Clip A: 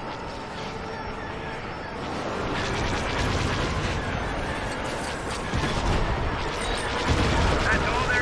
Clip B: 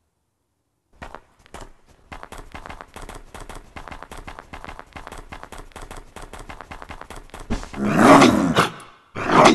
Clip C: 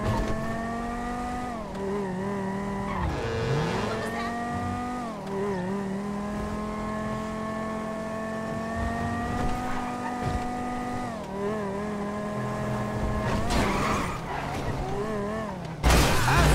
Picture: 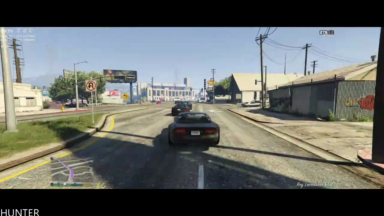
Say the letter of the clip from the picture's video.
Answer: C